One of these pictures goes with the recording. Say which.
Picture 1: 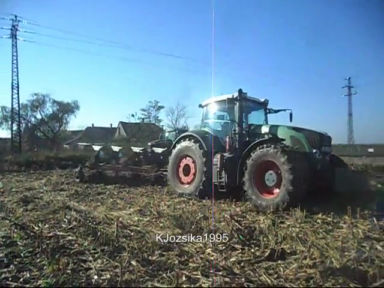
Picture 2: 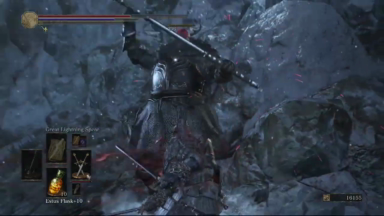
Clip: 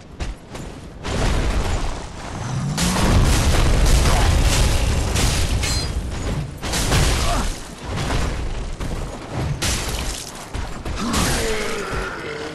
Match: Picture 2